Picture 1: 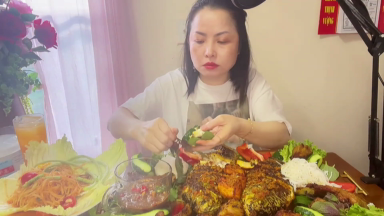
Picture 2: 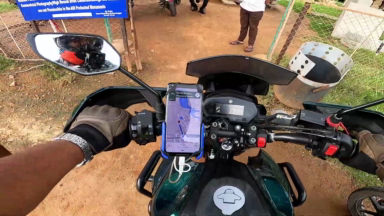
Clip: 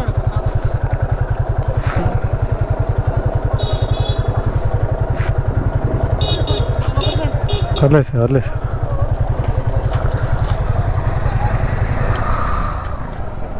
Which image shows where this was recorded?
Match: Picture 2